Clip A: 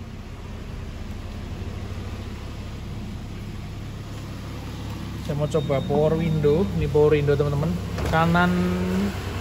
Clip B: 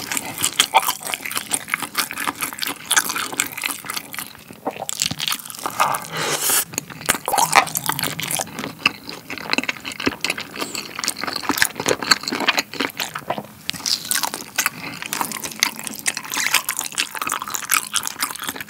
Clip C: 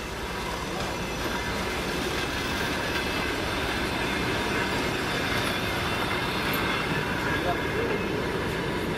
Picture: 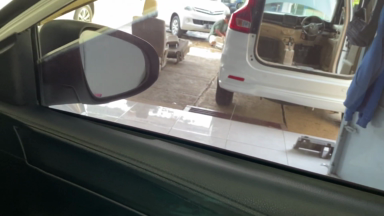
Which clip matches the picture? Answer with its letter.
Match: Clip A